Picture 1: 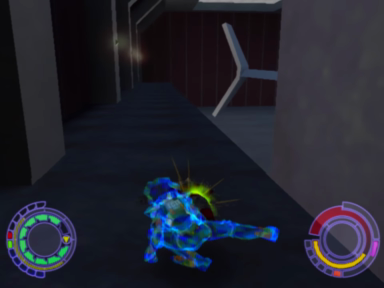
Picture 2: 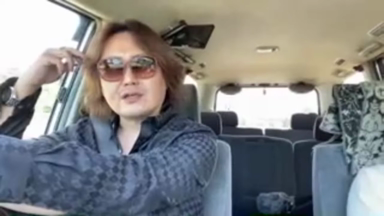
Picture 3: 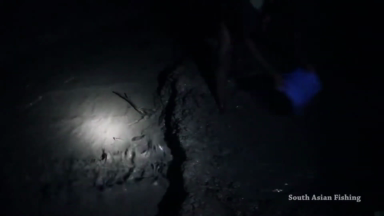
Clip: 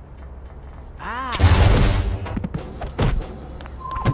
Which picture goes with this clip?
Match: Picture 1